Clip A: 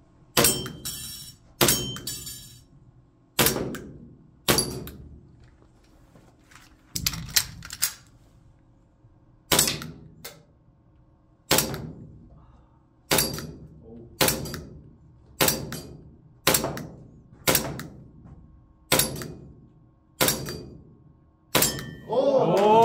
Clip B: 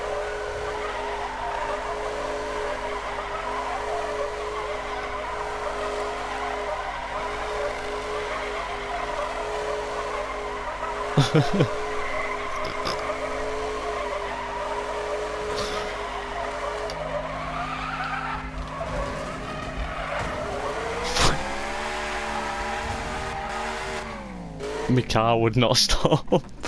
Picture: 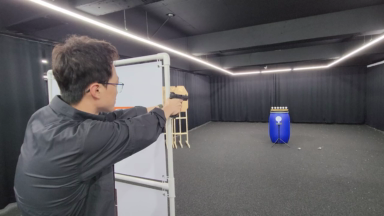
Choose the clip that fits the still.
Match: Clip A